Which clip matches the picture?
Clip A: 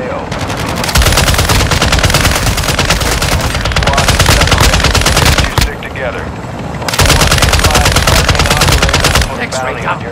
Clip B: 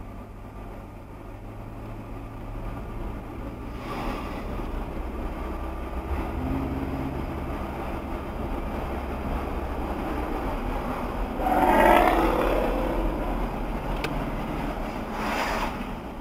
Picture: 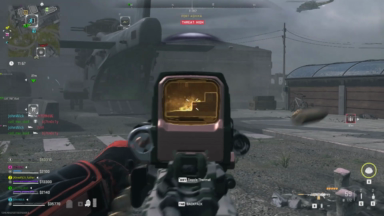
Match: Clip A